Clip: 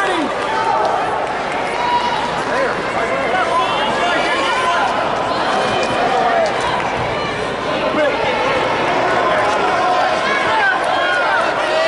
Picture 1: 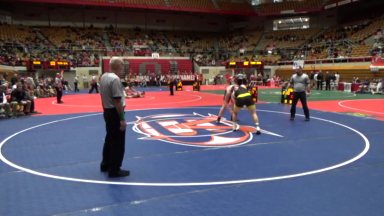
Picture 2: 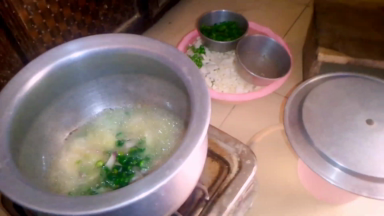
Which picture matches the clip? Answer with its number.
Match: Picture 1